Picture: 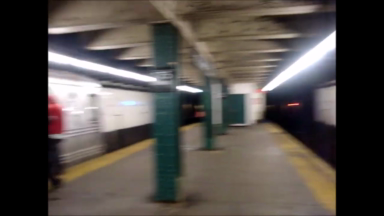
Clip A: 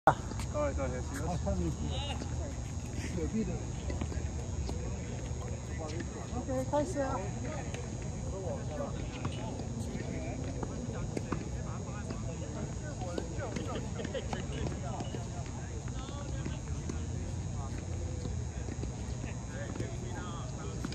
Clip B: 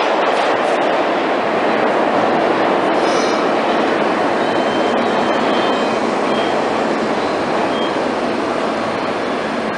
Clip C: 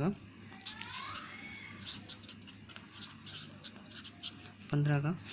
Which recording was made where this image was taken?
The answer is B